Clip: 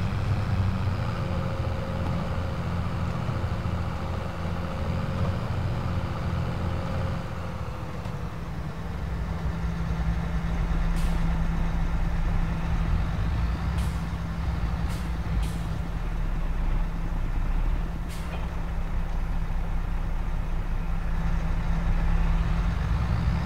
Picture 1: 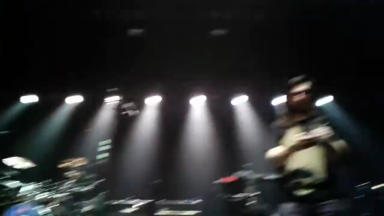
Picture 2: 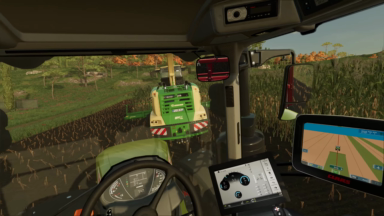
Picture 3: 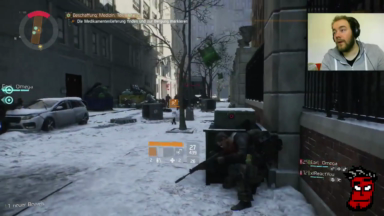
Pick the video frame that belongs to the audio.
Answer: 2